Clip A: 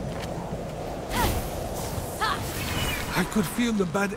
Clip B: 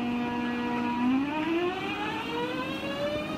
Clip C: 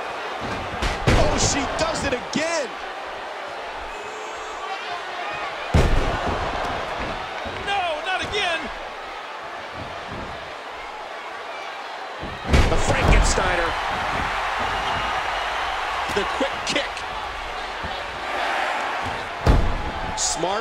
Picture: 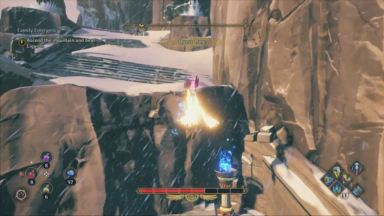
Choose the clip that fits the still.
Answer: A